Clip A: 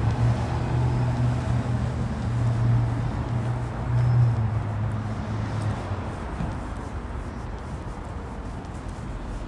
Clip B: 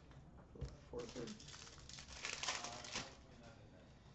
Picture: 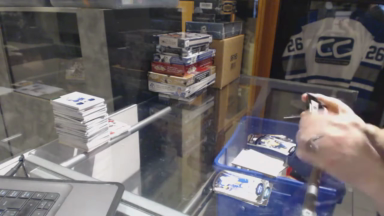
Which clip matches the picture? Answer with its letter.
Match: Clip B